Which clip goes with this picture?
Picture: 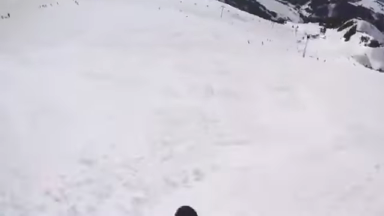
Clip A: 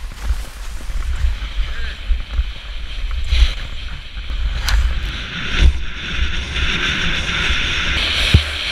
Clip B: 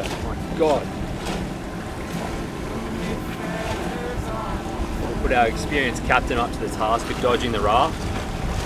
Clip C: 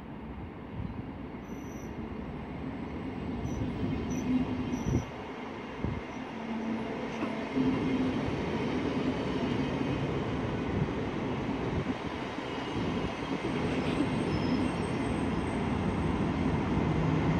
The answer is A